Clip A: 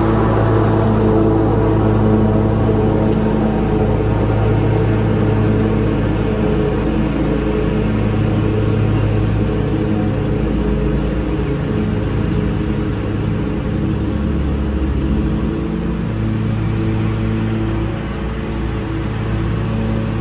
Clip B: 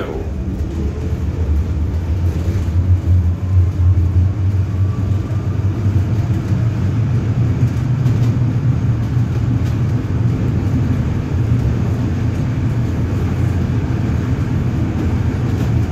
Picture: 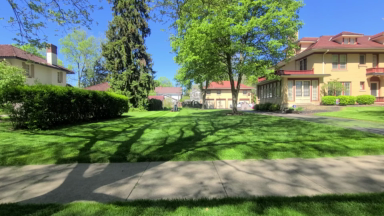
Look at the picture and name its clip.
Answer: A